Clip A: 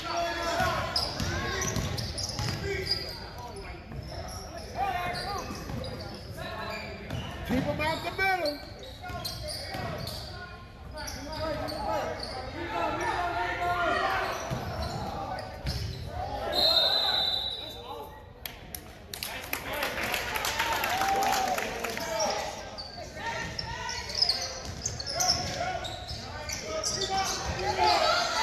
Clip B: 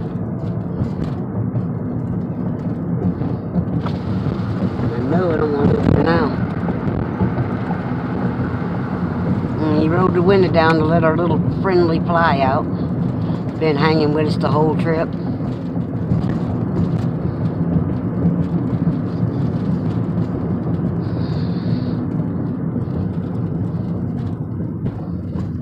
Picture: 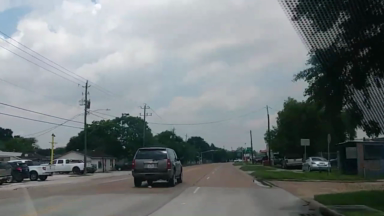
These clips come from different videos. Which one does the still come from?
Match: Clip B